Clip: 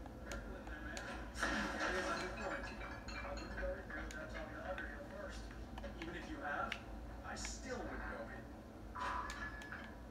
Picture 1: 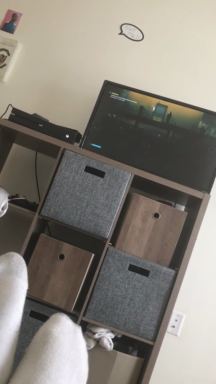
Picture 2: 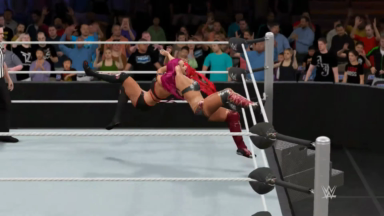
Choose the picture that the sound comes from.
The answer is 1